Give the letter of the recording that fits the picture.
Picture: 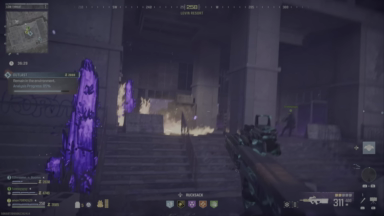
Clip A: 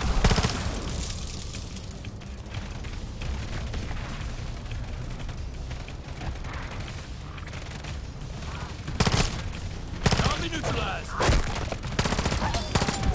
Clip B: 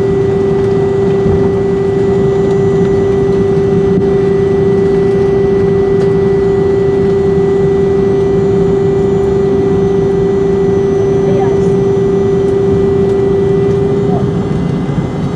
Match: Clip A